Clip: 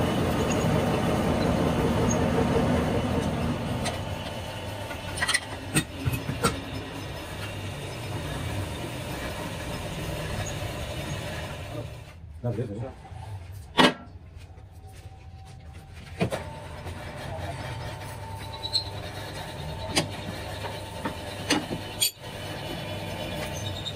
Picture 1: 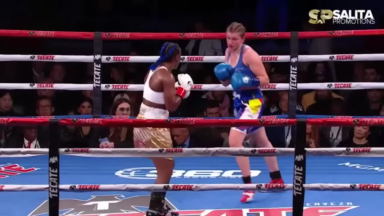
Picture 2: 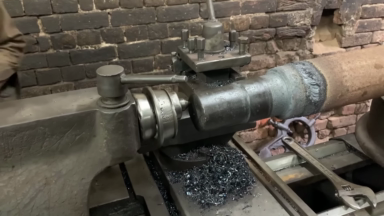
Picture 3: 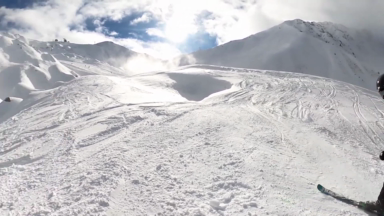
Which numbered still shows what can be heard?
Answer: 2